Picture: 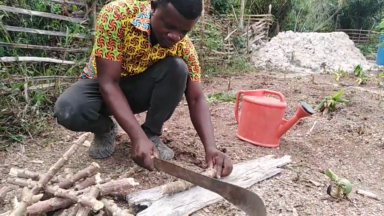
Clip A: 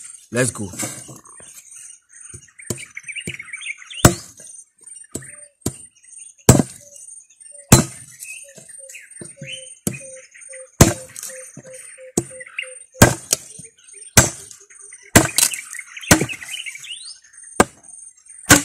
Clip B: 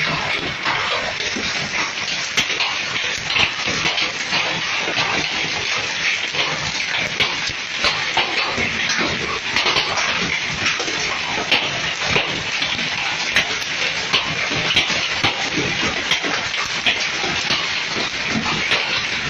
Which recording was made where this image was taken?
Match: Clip A